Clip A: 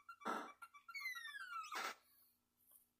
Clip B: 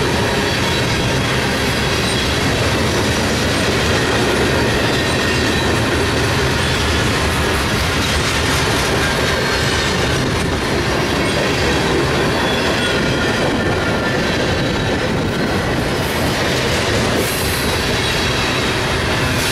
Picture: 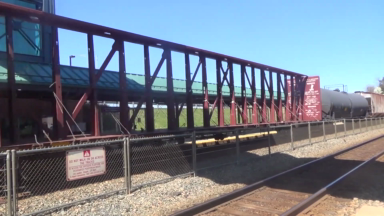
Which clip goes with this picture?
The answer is B